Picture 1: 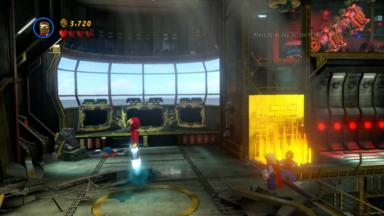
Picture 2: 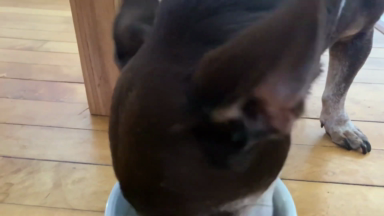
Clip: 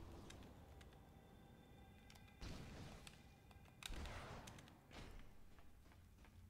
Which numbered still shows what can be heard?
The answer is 1